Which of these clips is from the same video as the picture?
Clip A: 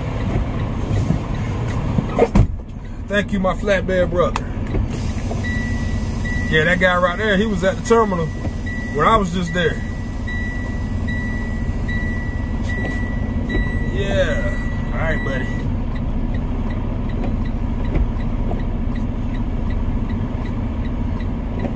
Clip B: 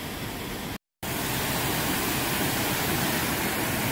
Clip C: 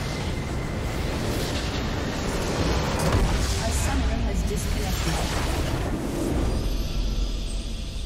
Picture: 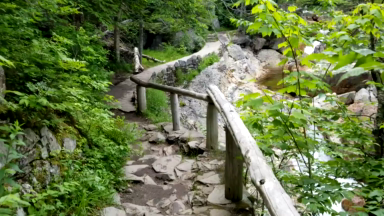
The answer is B